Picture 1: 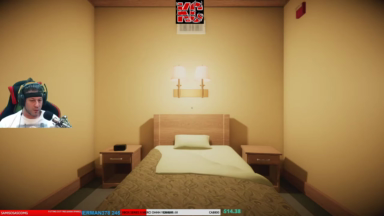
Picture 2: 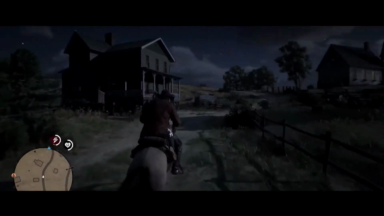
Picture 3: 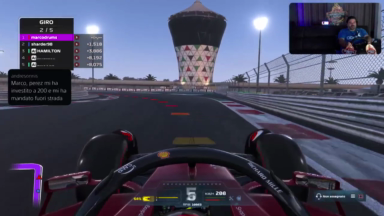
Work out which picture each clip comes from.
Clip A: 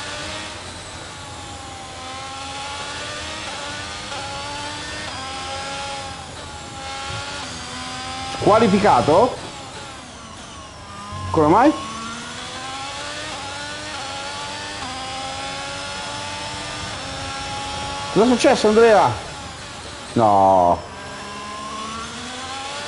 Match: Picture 3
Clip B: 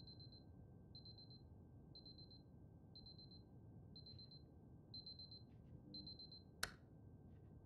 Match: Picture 1